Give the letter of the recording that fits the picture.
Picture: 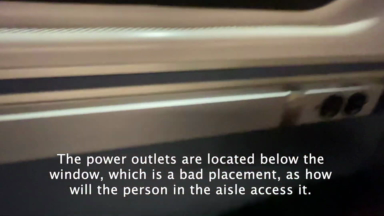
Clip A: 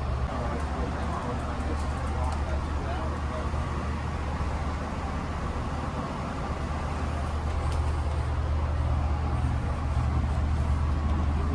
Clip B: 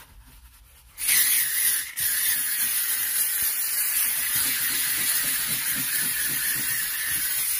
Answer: A